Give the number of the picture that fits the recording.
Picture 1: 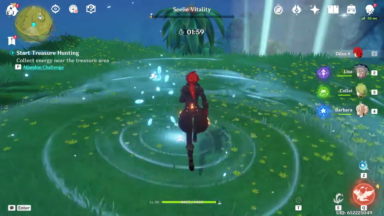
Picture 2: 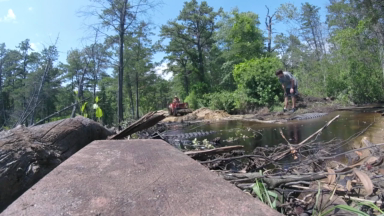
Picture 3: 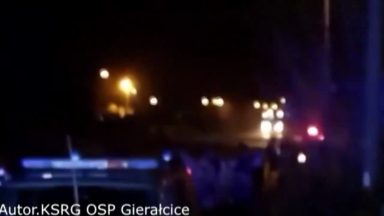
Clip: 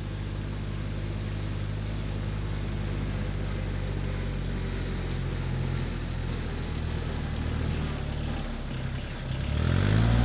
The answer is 2